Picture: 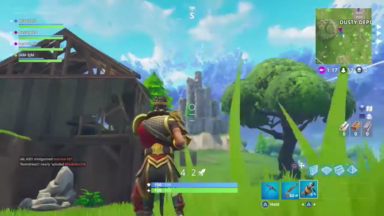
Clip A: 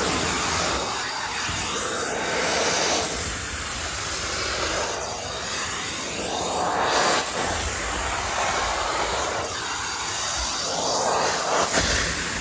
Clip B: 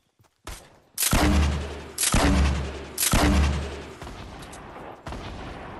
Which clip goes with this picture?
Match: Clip B